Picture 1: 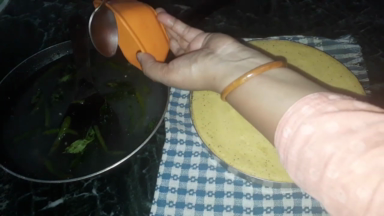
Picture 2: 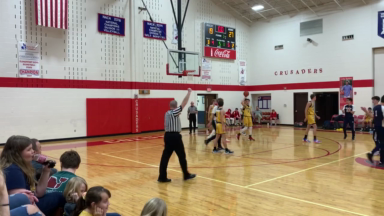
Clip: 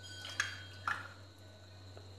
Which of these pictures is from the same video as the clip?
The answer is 1